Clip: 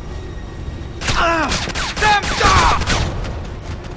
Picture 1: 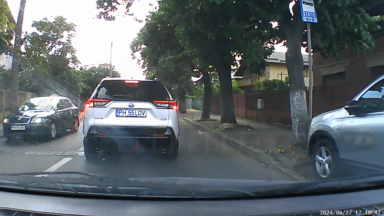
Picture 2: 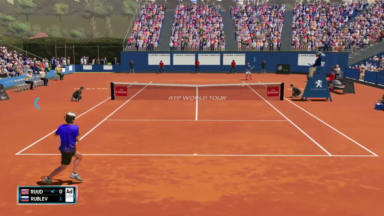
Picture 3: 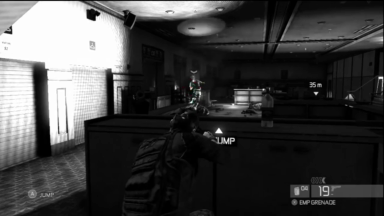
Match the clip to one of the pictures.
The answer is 3